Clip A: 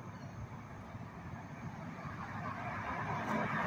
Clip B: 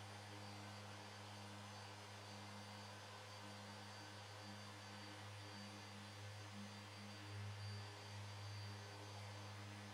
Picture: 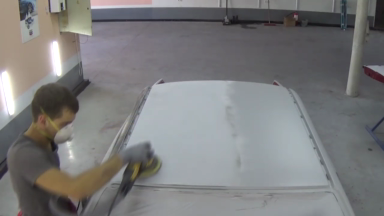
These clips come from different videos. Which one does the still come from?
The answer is B